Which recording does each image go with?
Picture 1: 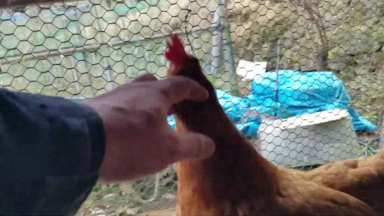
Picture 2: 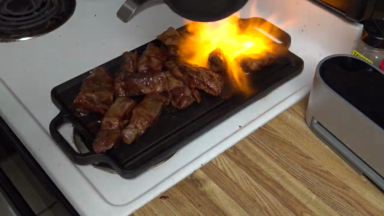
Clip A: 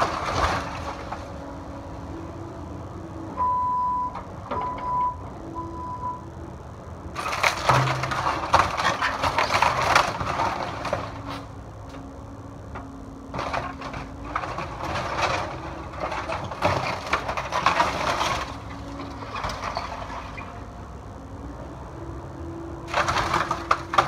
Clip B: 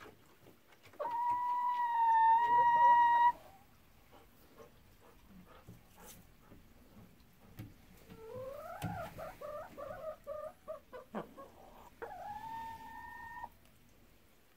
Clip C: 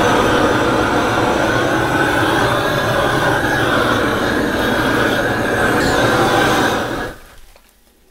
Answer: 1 B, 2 C